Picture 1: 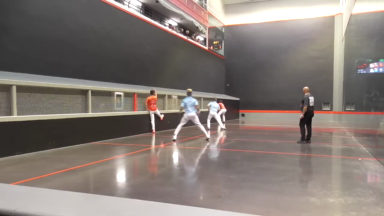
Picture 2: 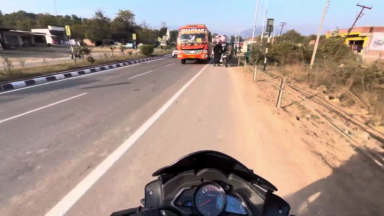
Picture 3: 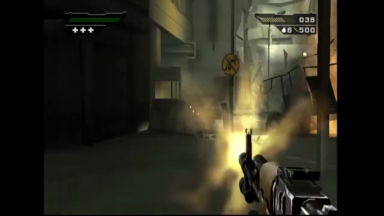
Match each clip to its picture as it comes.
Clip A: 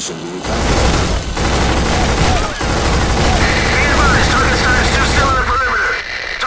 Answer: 3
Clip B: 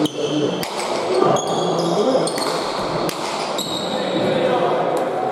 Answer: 1